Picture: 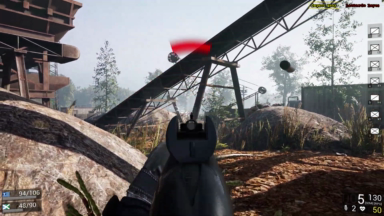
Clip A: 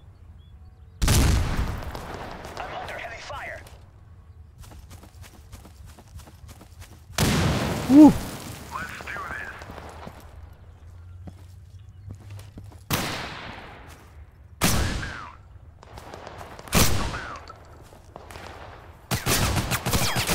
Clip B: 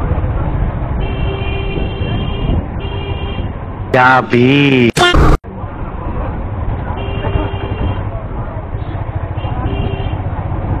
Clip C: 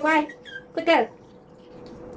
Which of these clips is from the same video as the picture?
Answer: A